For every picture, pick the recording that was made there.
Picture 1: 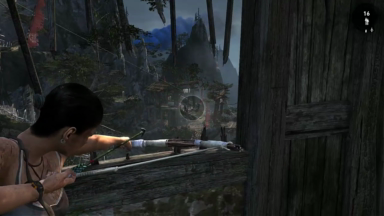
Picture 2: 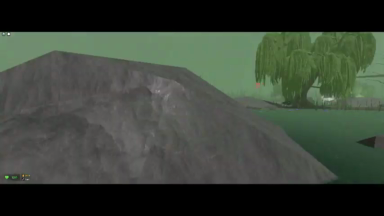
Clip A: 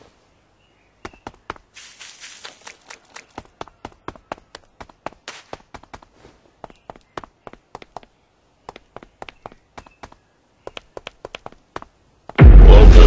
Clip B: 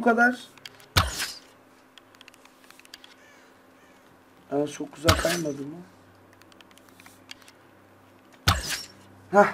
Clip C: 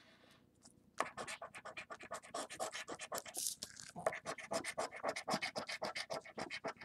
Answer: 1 B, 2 A